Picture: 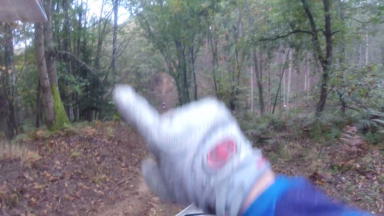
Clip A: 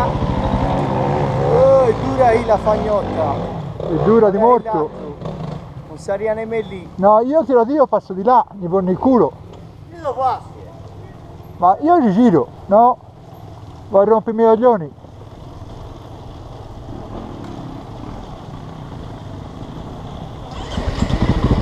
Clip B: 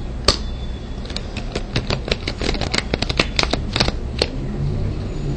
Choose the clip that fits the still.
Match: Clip A